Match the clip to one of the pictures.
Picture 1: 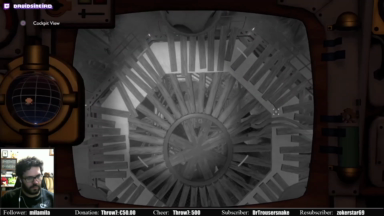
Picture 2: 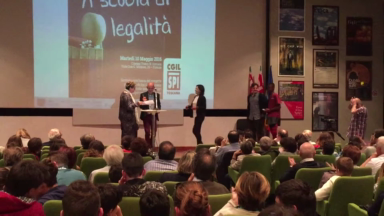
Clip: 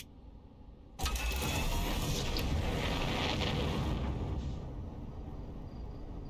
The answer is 1